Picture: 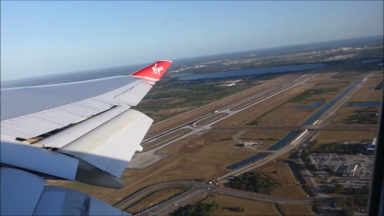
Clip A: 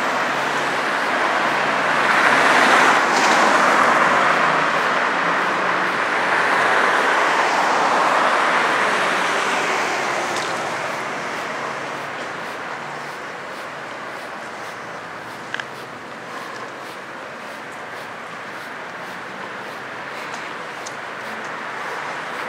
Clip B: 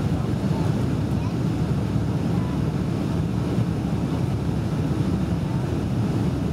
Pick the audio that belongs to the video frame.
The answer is B